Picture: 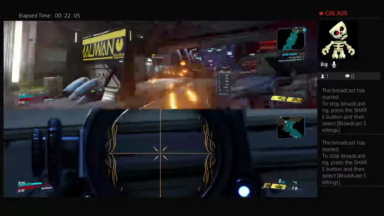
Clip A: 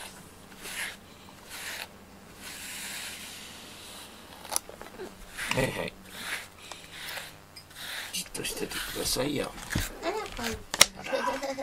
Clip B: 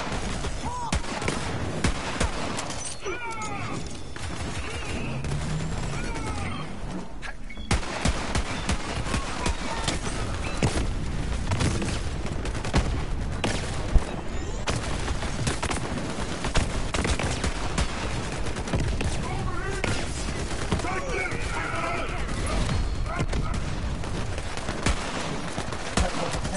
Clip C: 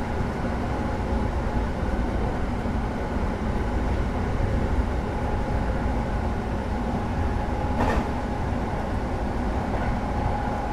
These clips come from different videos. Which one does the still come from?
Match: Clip B